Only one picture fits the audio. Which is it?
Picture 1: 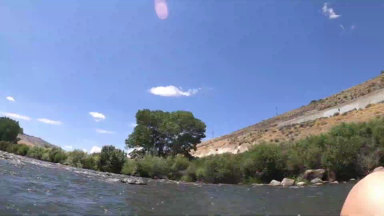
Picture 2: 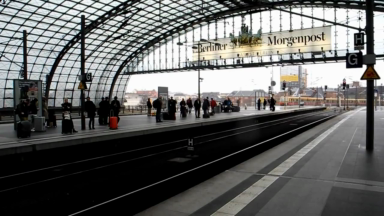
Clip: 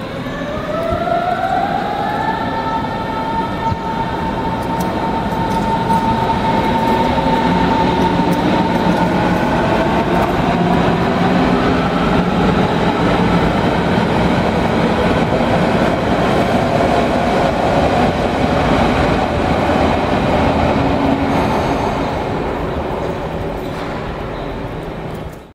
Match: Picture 2